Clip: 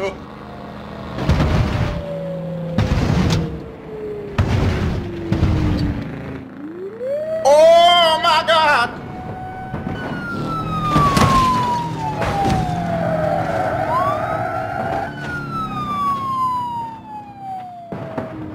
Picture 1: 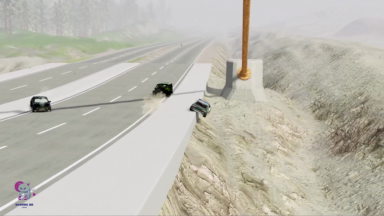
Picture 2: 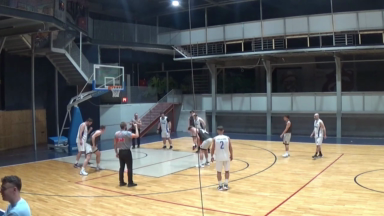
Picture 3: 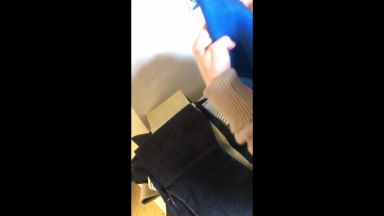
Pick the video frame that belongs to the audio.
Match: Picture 1